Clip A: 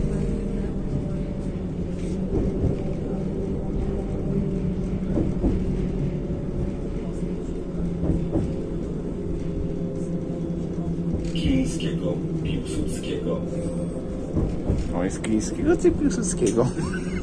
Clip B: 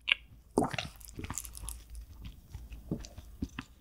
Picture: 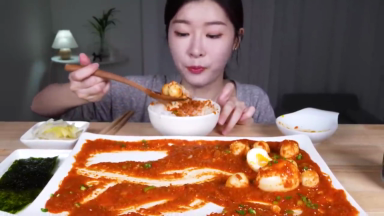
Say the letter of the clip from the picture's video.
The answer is B